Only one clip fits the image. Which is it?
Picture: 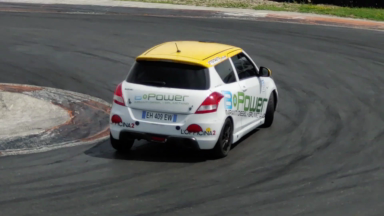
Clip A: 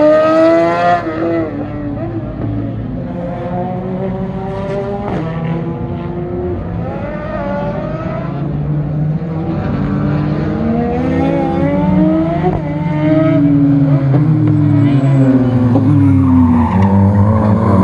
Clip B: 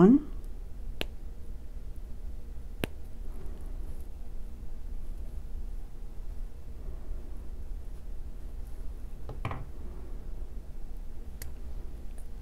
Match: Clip A